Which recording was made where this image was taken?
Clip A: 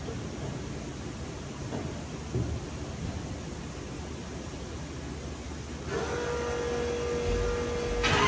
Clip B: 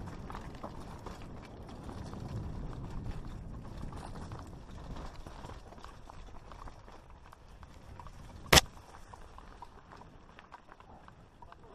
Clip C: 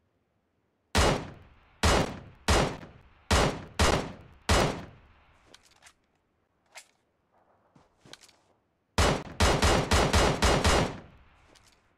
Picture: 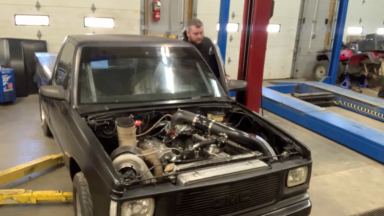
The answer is A